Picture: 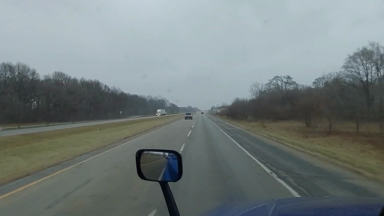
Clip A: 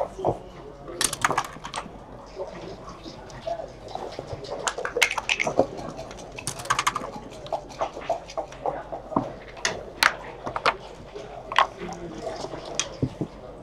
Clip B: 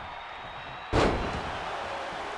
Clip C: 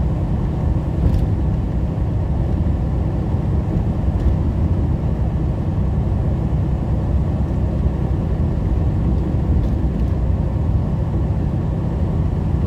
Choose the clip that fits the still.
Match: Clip C